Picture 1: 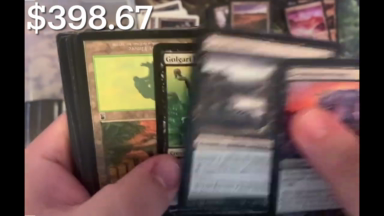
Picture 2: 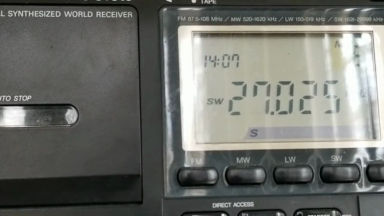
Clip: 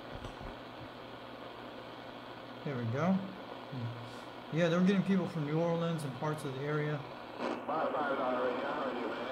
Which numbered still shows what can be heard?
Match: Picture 2